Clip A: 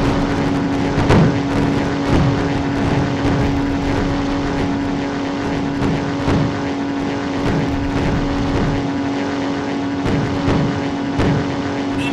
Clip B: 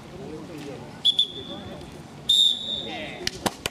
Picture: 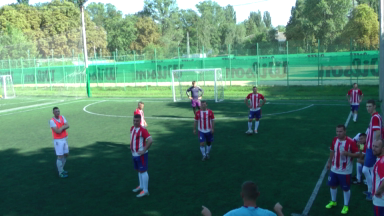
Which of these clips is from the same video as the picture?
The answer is B